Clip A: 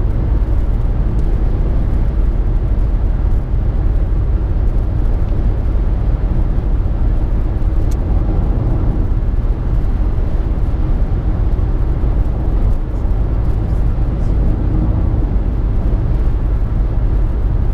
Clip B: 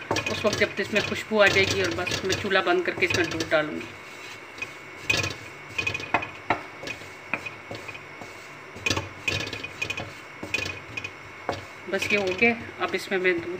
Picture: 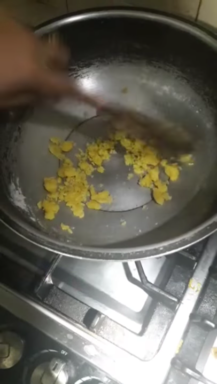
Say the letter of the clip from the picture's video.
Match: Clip B